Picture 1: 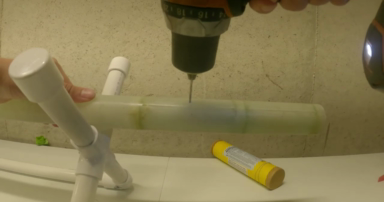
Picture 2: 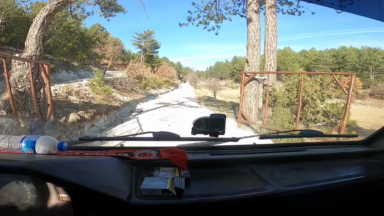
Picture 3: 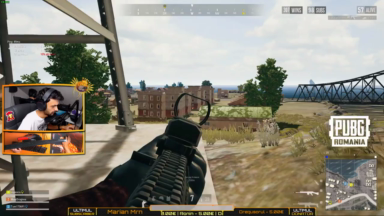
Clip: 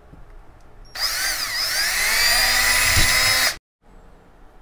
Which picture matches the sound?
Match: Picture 1